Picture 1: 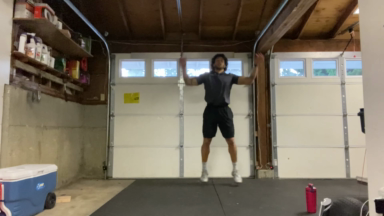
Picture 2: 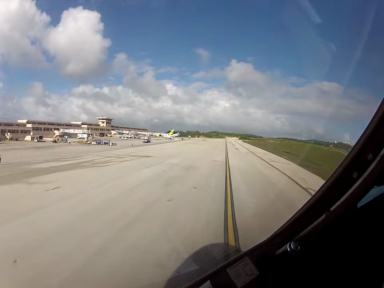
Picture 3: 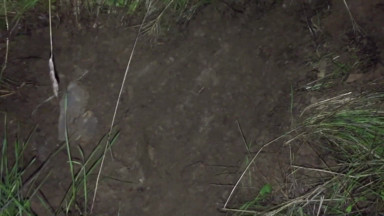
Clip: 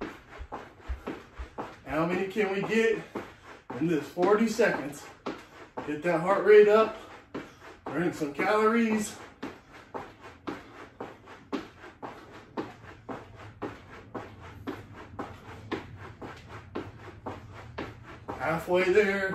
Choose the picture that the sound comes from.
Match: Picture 1